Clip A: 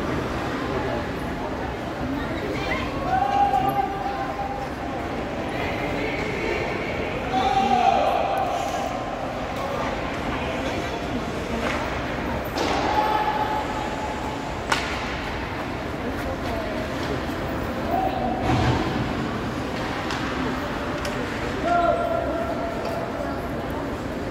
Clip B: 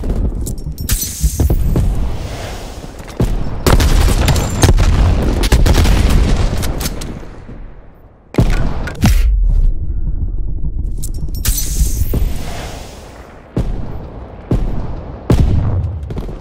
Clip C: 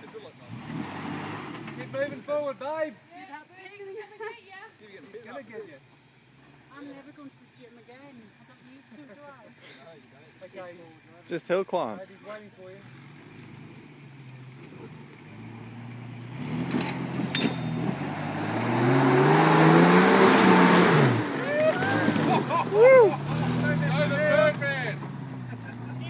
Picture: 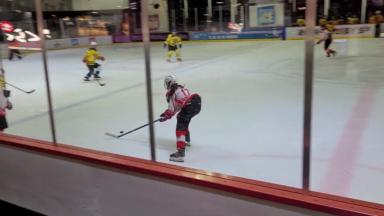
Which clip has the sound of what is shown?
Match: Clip A